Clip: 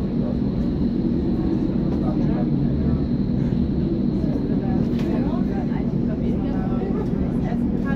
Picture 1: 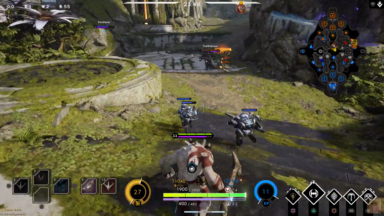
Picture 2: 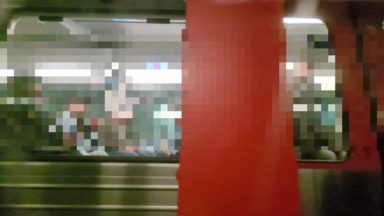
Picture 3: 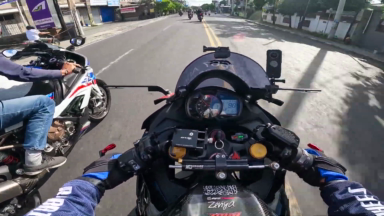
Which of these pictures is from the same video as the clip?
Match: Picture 2